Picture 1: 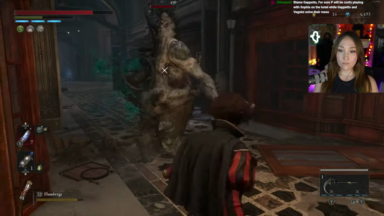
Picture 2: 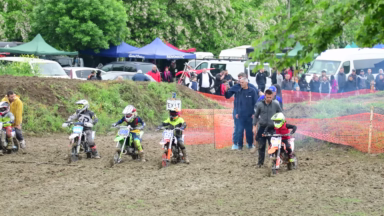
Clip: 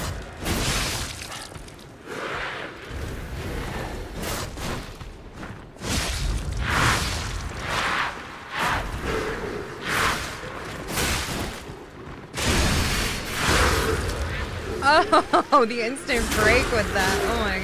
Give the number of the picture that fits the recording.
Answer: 1